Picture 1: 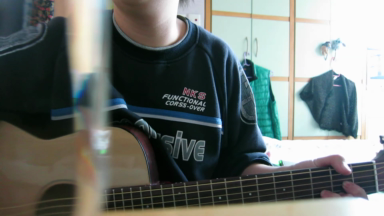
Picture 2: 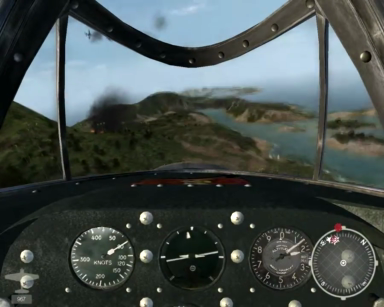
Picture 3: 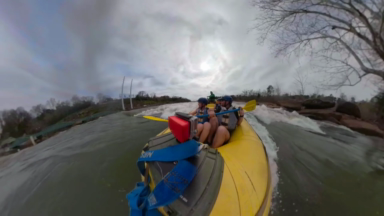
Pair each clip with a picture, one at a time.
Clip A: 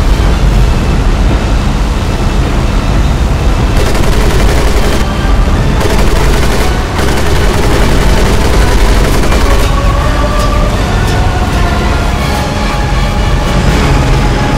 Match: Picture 2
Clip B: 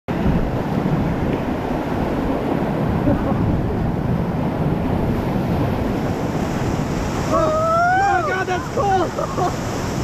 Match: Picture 3